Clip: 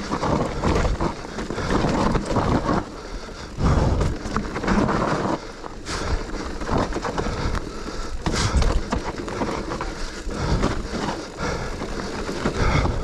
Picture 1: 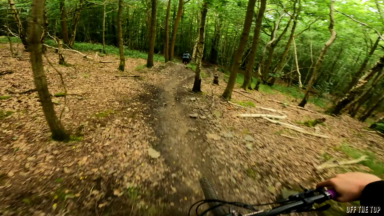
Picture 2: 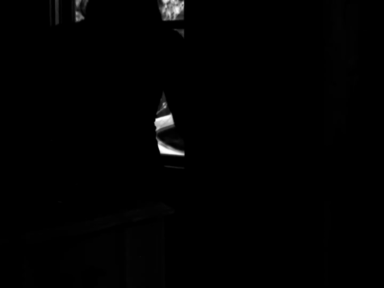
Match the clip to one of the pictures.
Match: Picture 1